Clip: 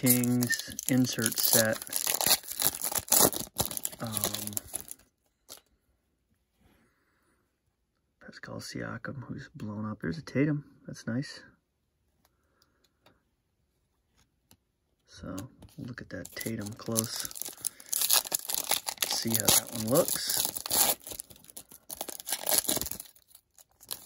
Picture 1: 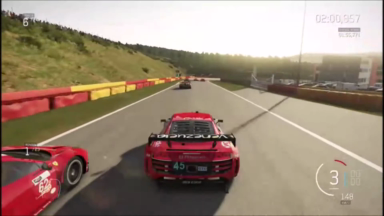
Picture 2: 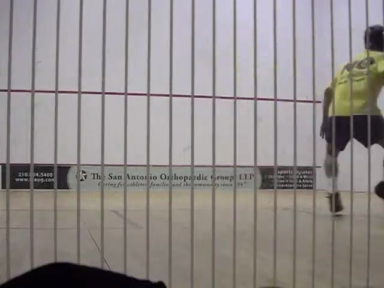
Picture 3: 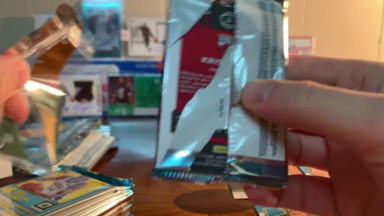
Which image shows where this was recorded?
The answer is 3